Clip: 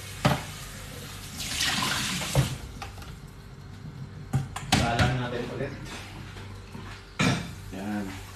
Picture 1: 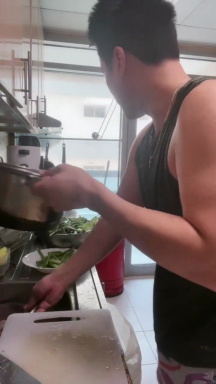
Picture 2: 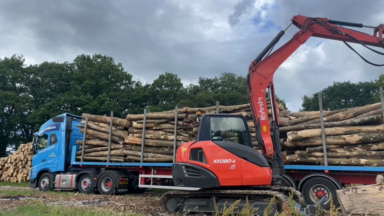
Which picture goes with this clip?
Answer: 1